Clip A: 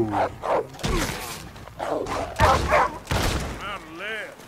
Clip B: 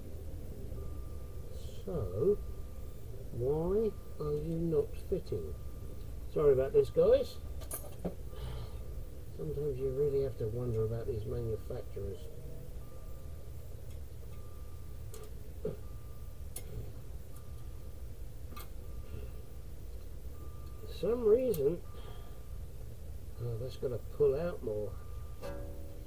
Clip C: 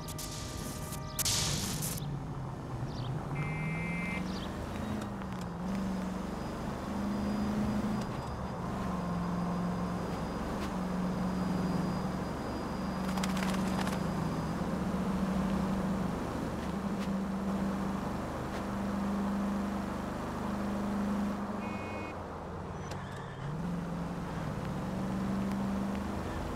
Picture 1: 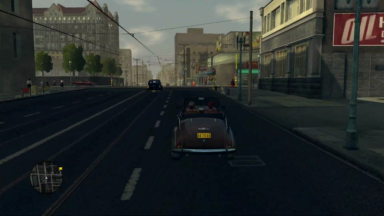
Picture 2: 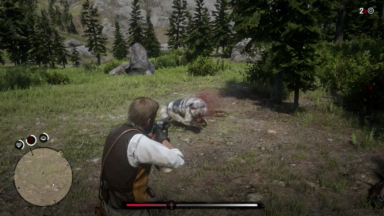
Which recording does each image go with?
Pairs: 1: C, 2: A